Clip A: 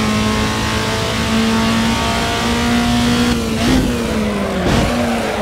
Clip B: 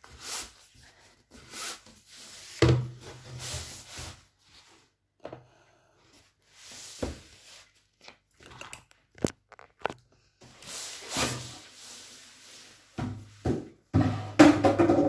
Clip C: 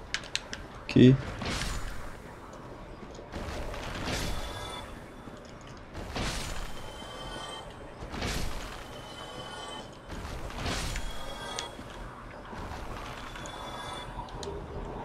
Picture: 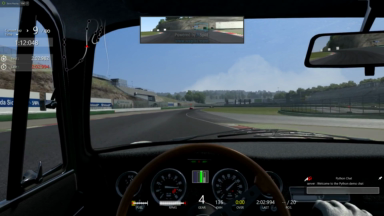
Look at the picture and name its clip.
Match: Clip A